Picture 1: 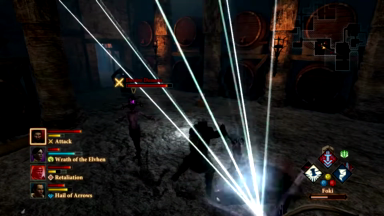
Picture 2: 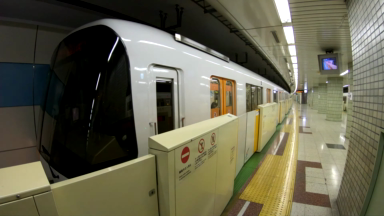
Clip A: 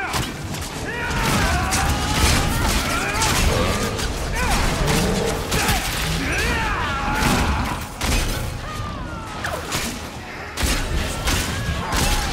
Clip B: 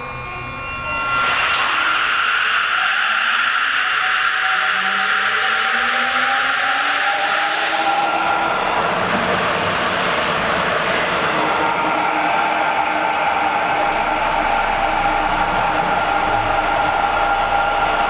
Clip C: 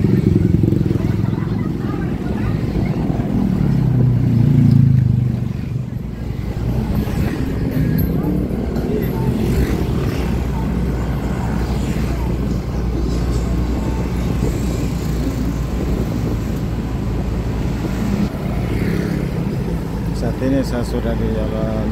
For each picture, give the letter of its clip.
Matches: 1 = A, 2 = B